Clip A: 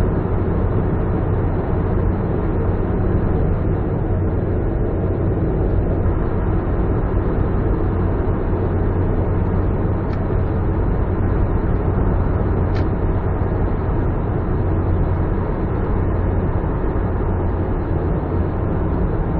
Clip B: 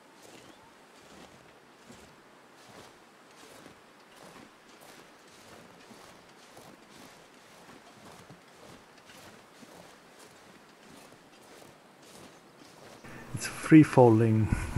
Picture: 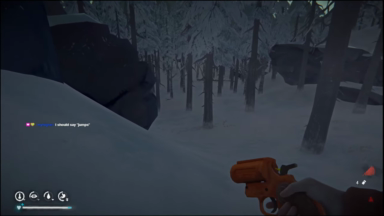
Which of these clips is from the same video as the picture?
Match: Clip B